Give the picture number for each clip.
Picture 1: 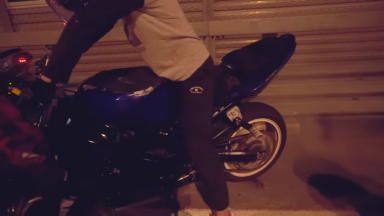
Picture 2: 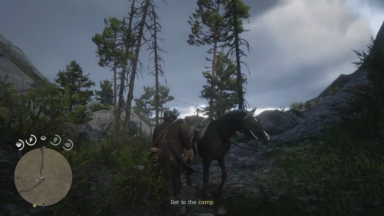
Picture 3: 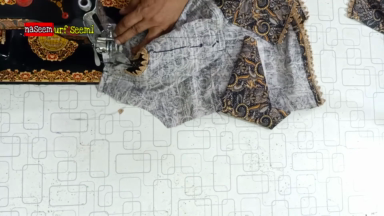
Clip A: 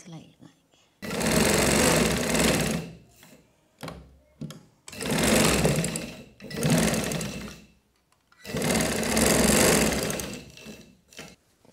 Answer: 3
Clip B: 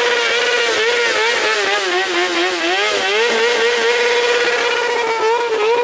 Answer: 1